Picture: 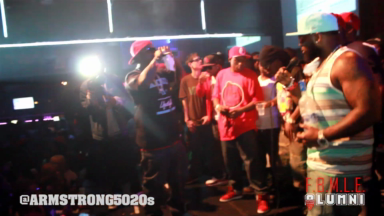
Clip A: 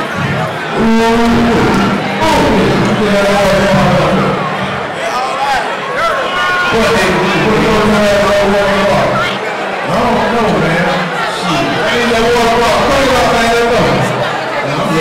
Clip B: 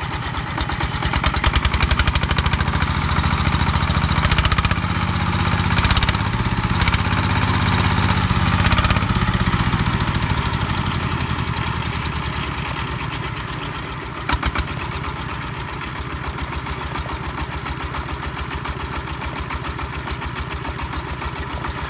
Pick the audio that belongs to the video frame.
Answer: A